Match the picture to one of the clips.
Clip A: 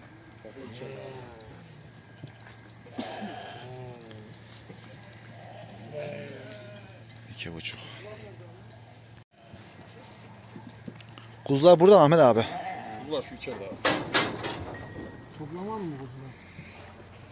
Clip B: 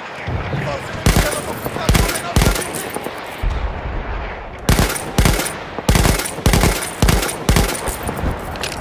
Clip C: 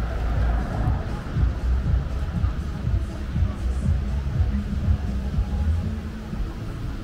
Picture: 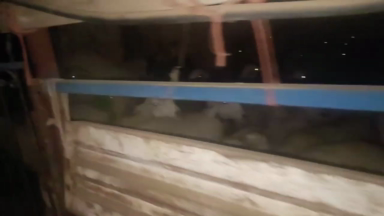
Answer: A